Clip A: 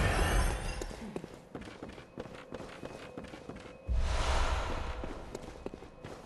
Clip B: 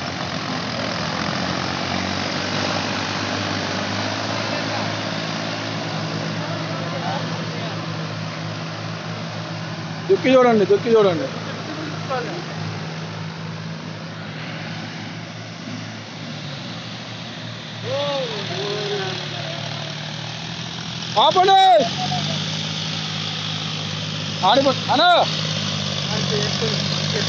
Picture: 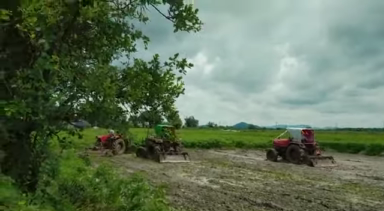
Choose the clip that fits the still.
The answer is B